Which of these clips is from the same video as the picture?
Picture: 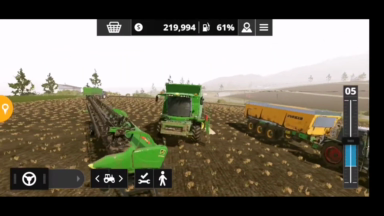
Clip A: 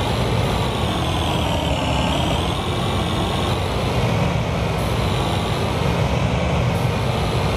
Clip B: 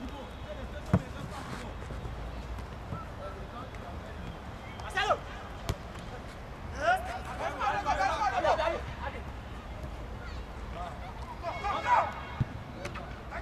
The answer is A